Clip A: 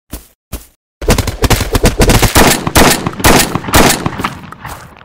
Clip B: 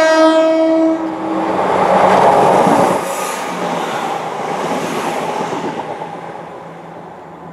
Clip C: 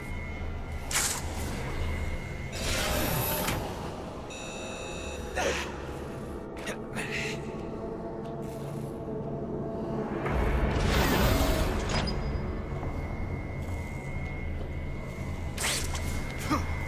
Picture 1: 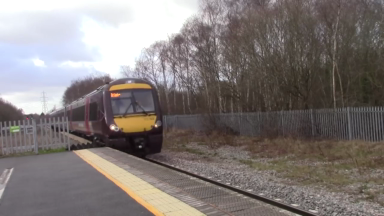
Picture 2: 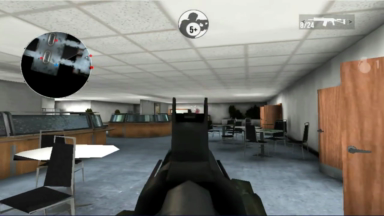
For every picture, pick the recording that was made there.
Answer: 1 B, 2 A